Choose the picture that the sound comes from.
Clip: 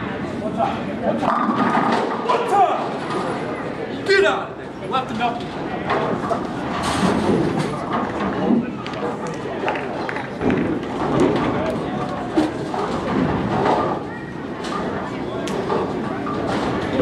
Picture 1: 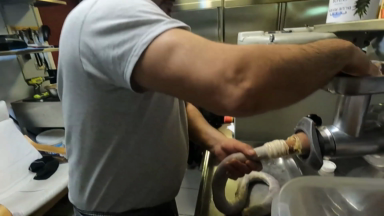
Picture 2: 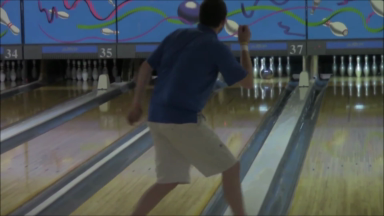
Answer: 2